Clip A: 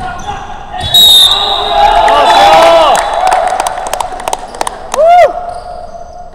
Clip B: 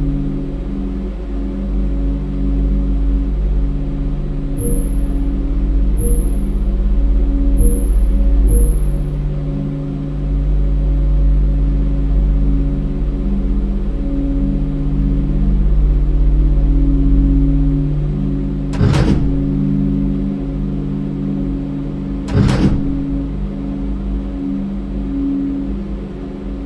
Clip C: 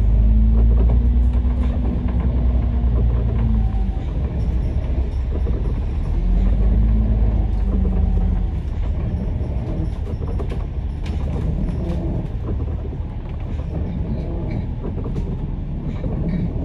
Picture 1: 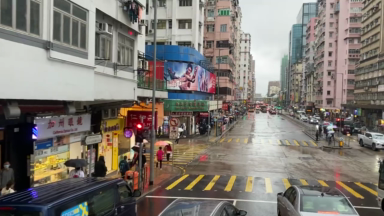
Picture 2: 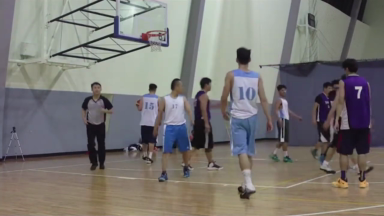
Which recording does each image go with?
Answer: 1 C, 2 A